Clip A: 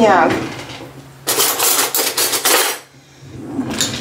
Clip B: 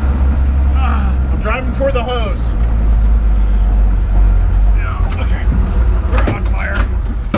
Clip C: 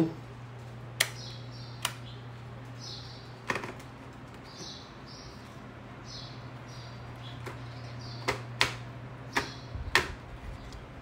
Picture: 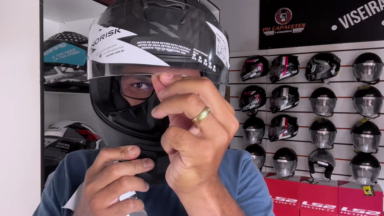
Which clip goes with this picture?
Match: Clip C